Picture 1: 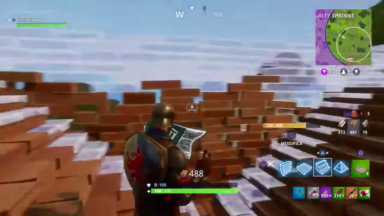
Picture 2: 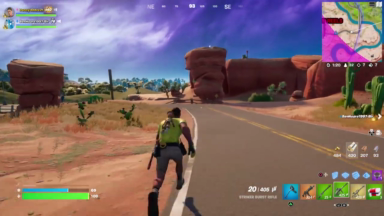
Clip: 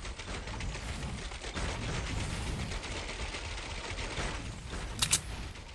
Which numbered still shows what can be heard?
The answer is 1